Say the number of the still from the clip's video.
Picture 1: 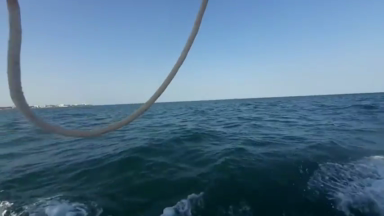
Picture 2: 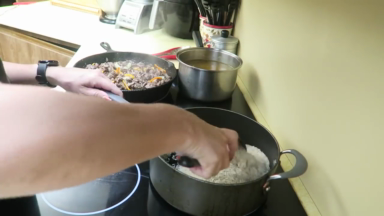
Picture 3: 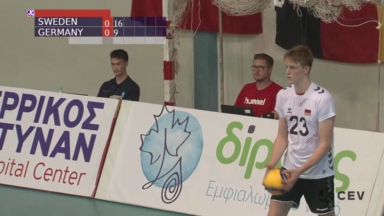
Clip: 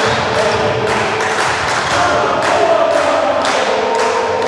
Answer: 3